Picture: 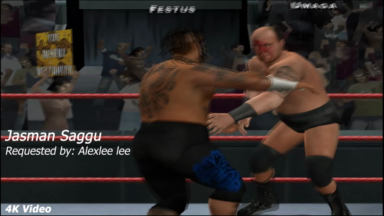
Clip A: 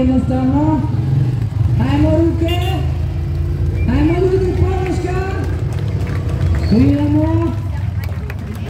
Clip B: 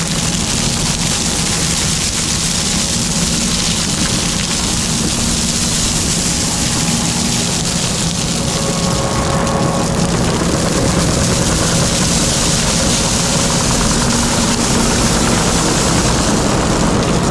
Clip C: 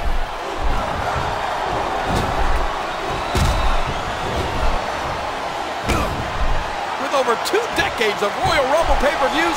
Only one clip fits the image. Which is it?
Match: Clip C